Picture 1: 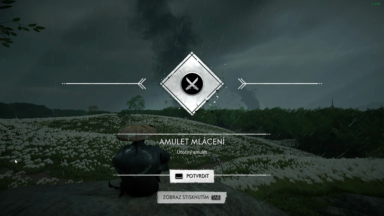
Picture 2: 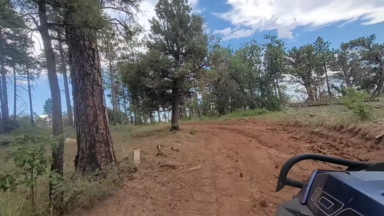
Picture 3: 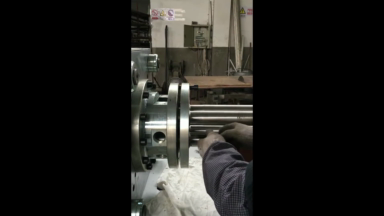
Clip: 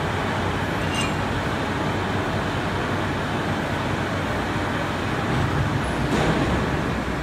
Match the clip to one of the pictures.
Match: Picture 3